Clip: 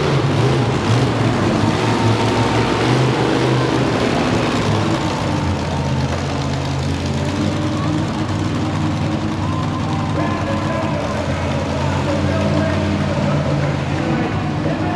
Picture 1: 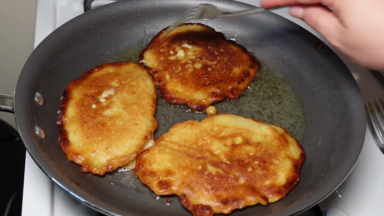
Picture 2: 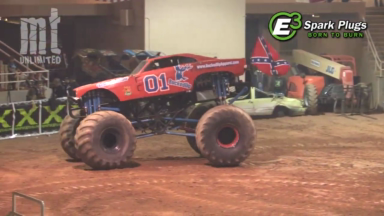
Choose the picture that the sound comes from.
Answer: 2